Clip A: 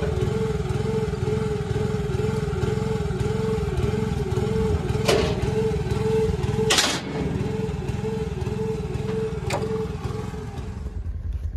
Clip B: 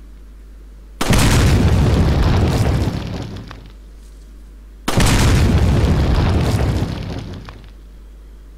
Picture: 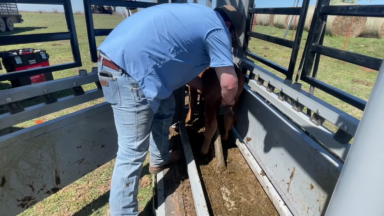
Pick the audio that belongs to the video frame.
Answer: A